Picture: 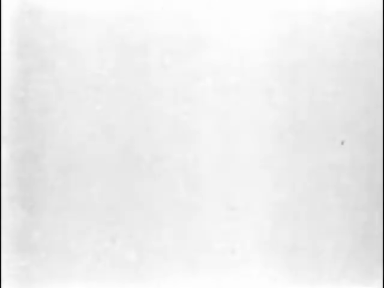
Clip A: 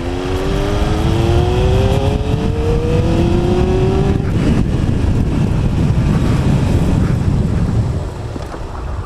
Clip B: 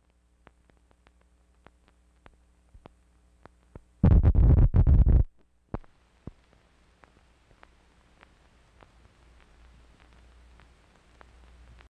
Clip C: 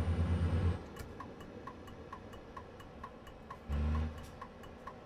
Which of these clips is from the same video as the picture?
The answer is B